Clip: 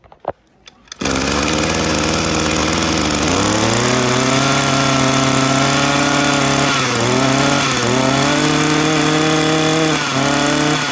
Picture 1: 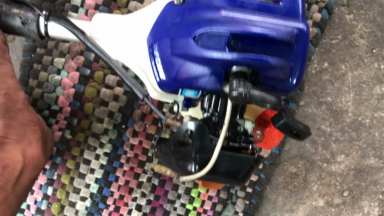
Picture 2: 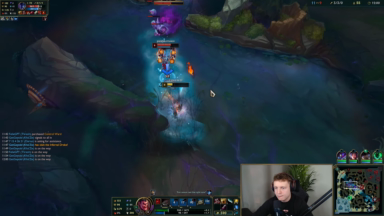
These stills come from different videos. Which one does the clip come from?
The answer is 1